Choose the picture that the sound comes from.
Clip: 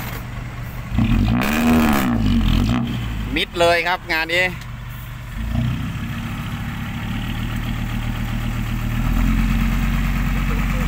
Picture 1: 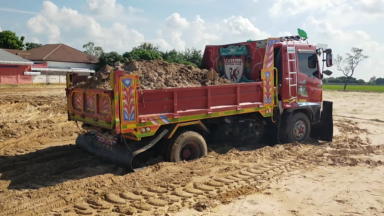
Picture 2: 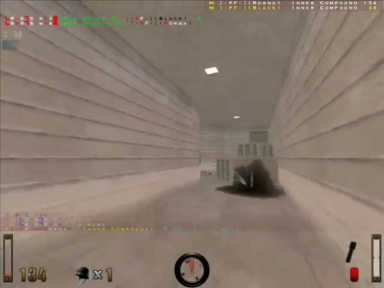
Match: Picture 1